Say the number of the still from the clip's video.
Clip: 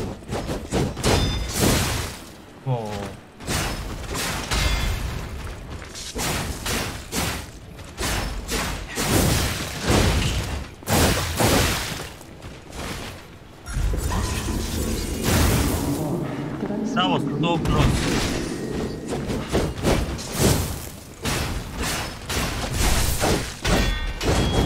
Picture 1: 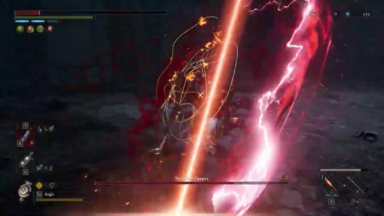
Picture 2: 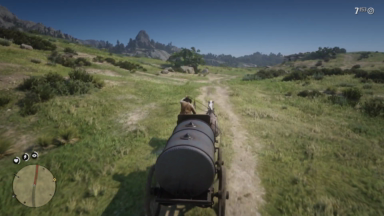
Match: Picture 1